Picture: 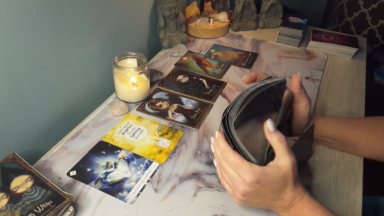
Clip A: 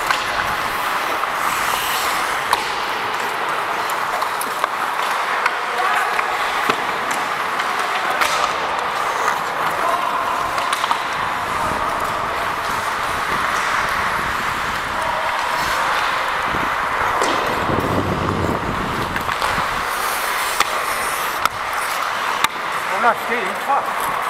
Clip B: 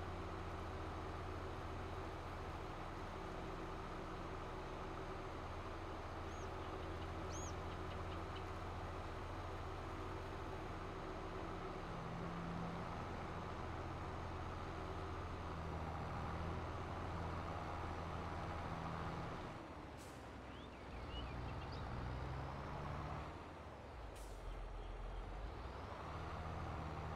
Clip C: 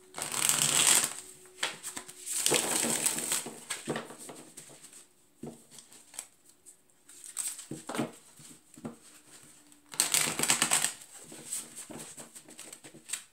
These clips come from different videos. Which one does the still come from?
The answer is C